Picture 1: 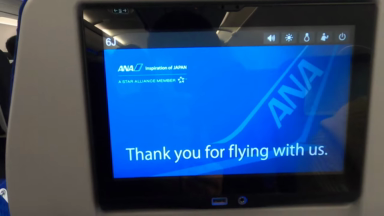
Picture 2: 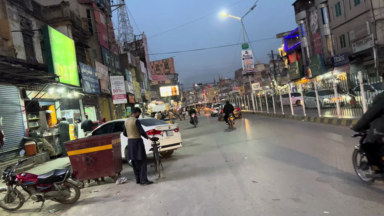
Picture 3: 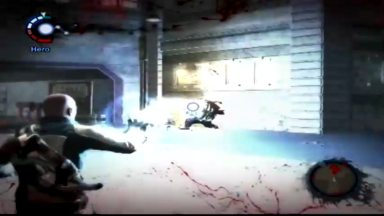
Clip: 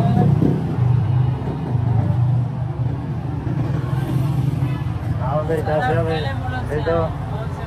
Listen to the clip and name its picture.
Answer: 2